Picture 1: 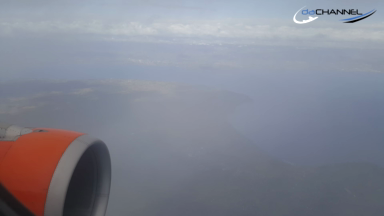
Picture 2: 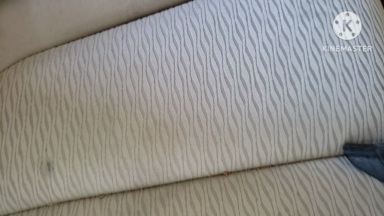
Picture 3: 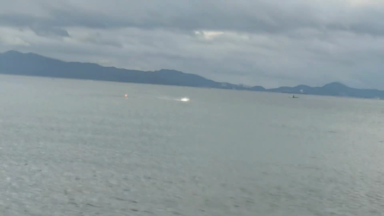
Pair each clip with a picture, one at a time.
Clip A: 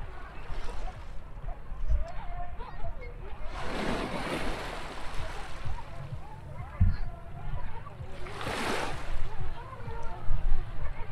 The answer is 3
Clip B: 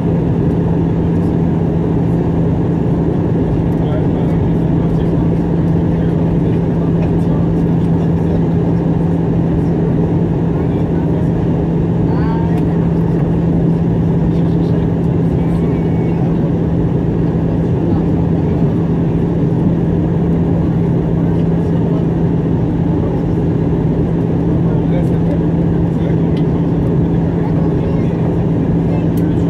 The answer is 1